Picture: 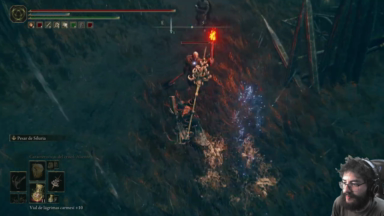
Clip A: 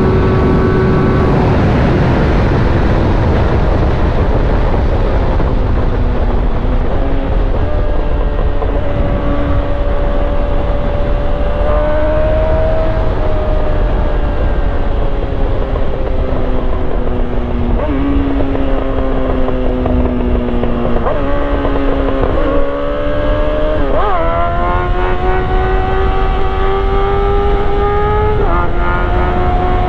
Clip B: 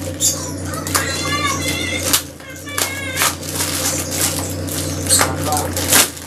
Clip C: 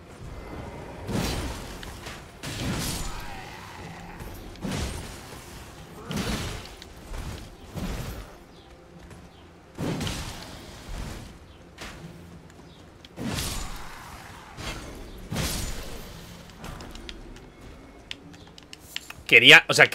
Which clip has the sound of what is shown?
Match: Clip C